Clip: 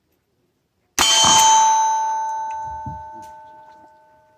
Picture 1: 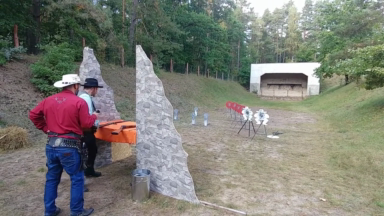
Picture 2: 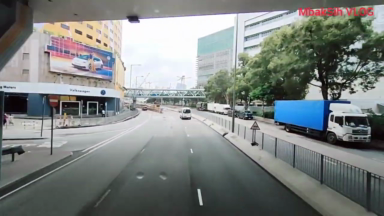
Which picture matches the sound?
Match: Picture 1